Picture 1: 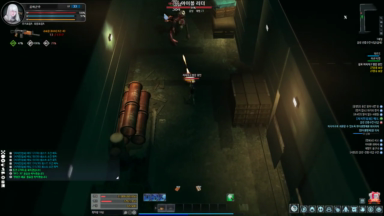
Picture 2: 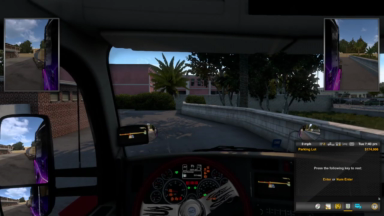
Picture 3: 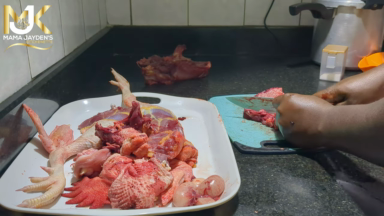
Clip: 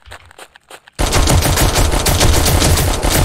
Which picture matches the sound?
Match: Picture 1